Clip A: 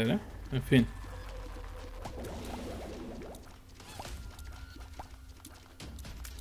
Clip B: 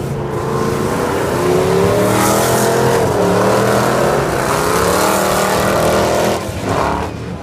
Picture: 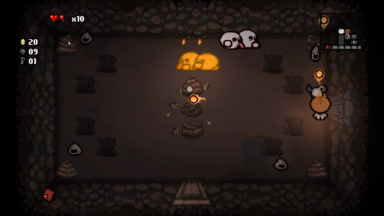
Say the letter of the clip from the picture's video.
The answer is A